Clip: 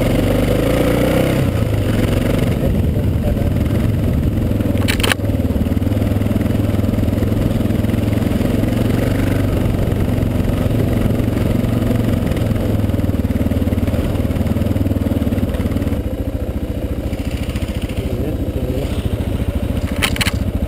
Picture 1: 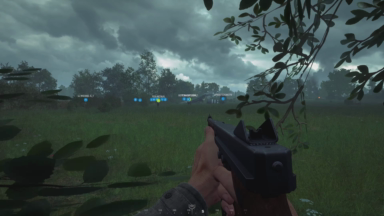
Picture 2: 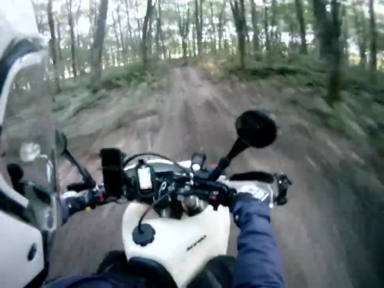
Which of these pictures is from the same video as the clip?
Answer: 2